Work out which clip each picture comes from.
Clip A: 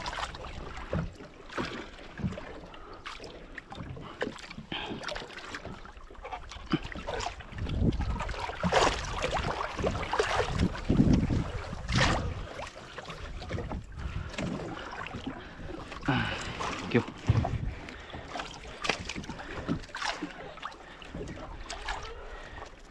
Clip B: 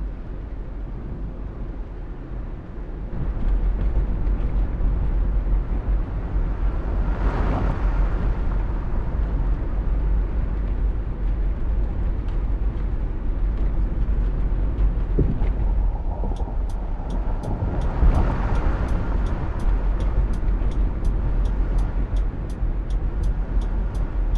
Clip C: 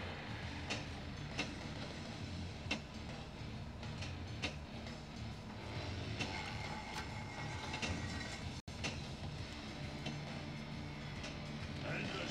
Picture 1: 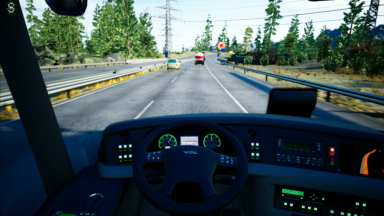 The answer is B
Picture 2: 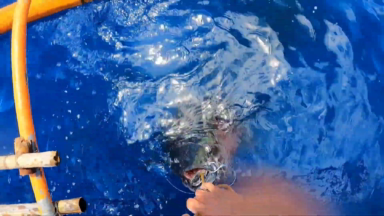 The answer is A